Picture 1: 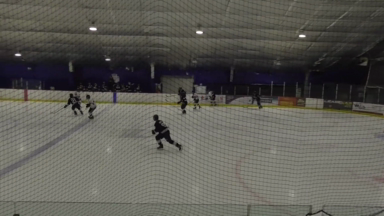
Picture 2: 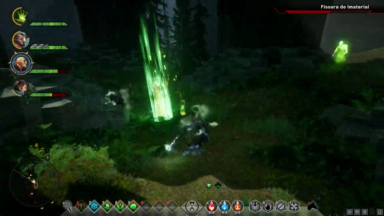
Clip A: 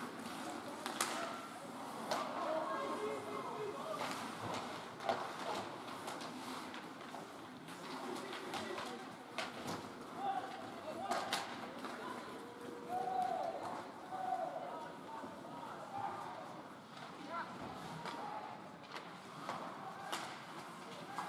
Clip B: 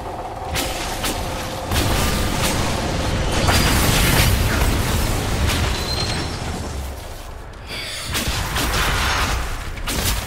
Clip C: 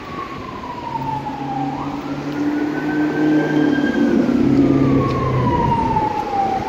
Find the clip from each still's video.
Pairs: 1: A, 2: B